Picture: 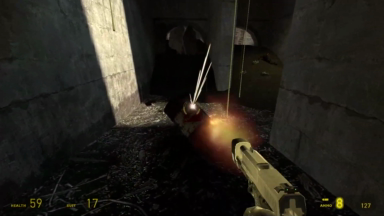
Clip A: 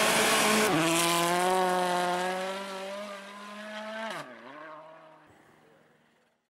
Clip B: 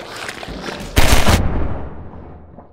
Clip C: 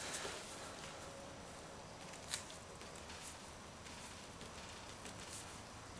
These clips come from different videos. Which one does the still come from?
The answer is B